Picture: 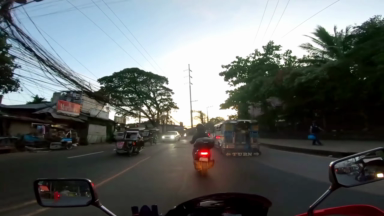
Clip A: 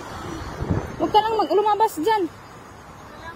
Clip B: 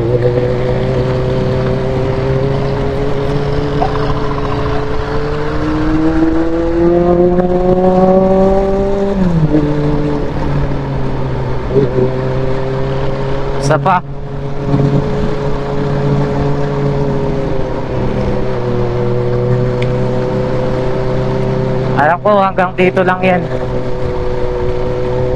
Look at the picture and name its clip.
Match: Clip B